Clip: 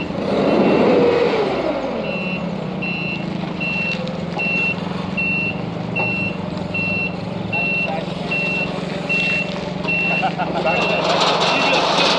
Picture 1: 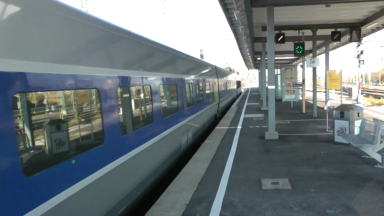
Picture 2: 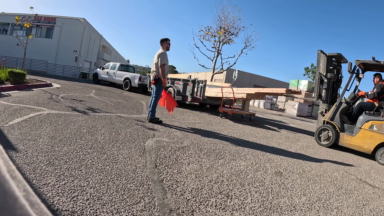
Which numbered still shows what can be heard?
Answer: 2